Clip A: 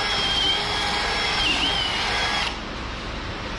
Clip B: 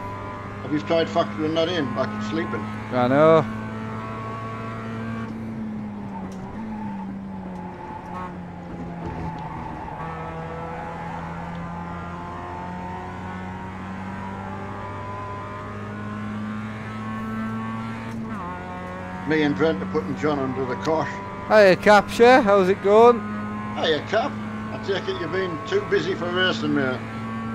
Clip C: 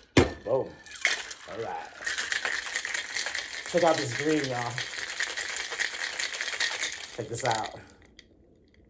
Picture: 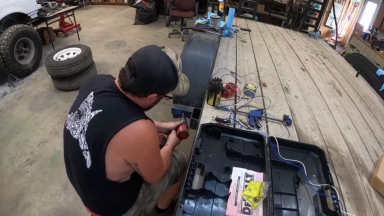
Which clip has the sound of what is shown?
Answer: A